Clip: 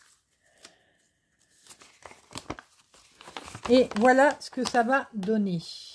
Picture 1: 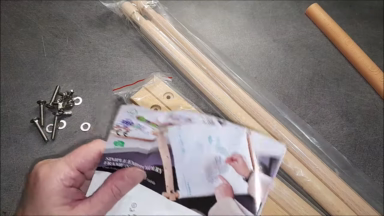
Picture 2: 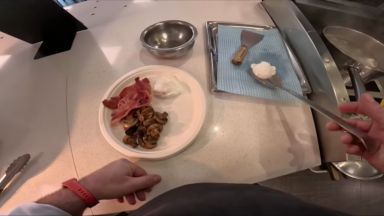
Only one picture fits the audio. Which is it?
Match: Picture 1